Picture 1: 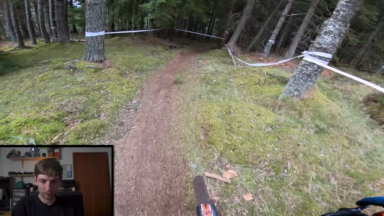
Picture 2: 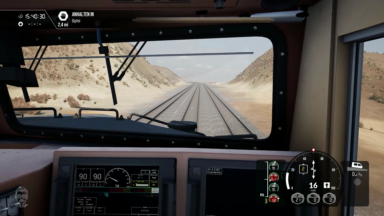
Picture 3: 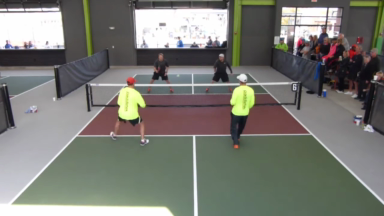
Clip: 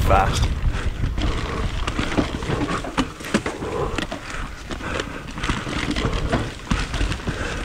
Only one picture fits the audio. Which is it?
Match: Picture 1